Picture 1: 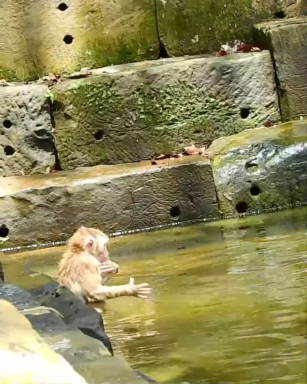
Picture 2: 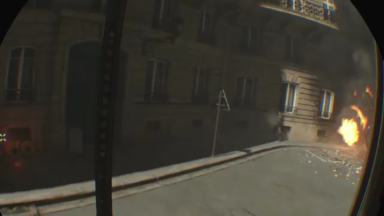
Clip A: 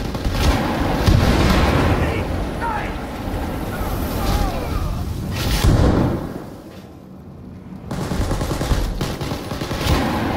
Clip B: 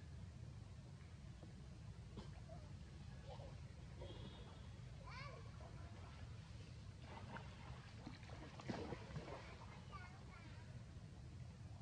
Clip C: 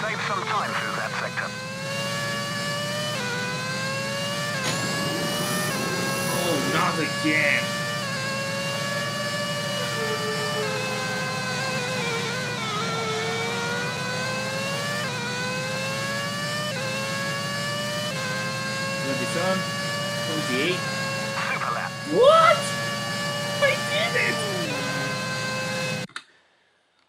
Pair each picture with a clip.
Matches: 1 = B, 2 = A